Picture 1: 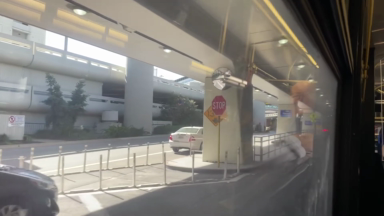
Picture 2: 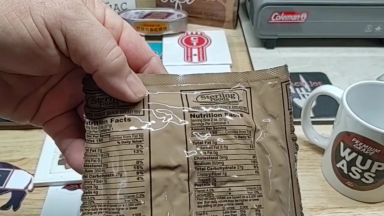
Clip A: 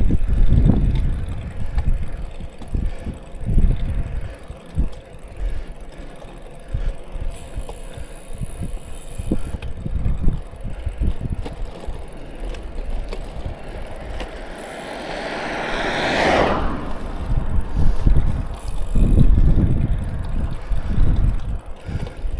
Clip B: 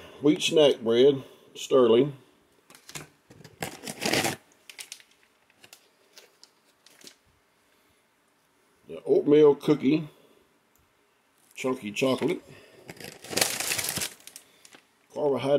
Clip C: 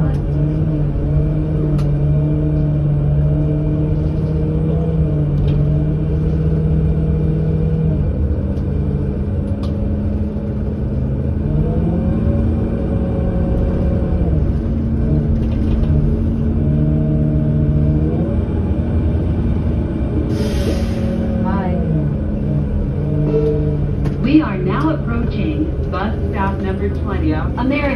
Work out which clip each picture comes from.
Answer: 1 C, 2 B